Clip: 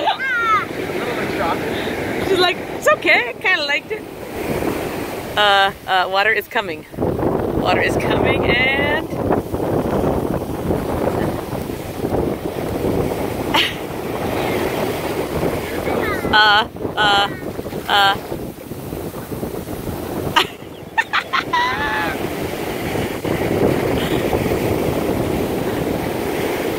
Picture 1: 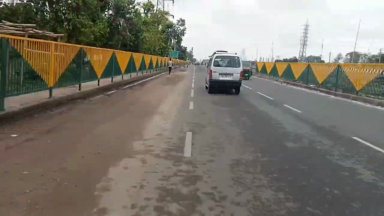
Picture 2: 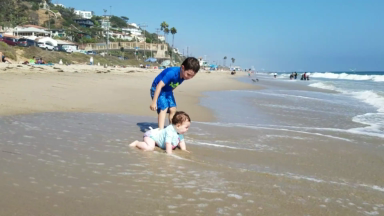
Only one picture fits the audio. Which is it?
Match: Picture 2